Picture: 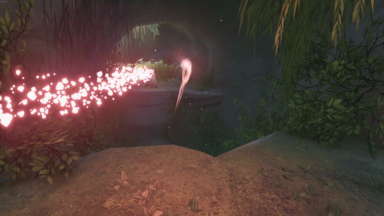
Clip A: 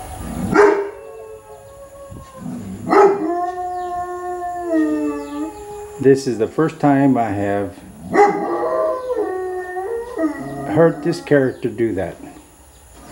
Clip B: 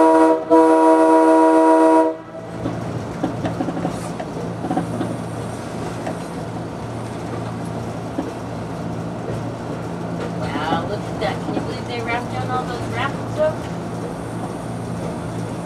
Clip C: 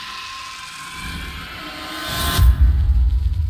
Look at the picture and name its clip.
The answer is C